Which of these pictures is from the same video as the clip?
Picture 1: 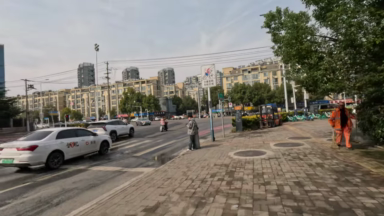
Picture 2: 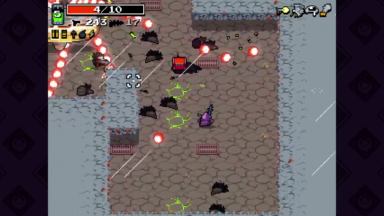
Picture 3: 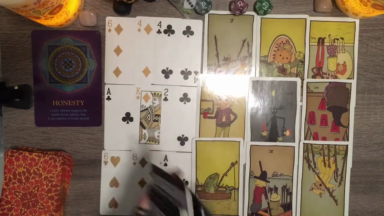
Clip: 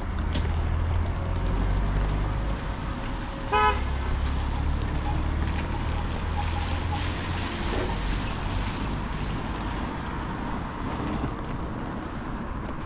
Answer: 1